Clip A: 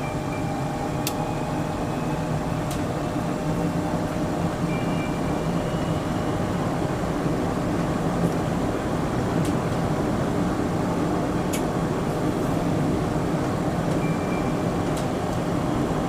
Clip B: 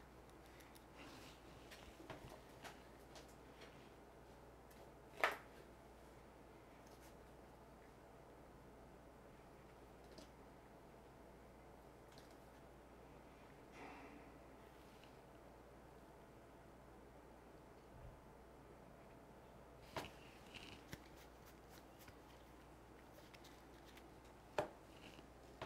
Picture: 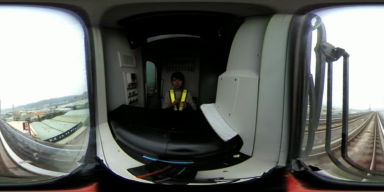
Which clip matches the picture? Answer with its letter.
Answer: A